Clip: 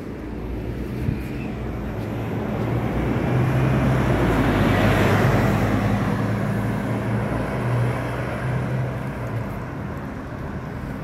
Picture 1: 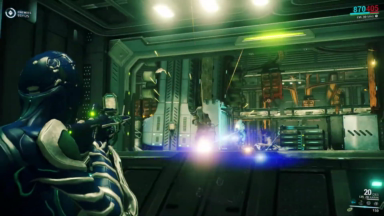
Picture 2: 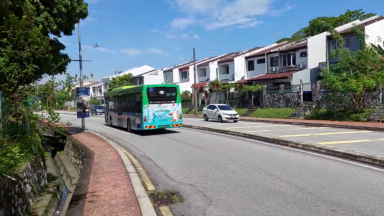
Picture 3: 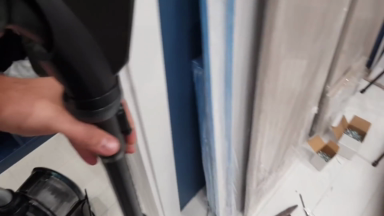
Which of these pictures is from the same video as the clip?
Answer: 2